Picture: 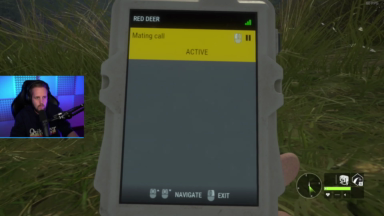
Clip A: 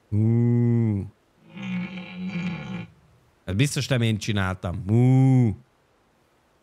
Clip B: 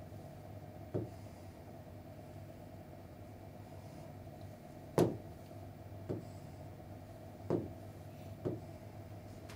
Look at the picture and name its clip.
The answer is A